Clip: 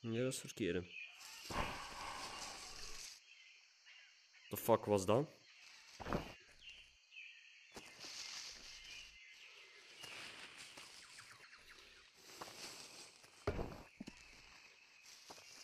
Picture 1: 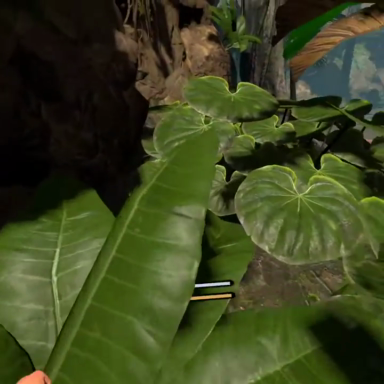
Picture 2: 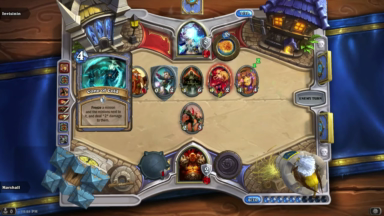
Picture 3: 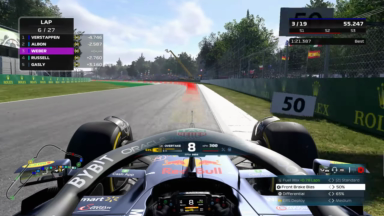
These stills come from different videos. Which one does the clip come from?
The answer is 1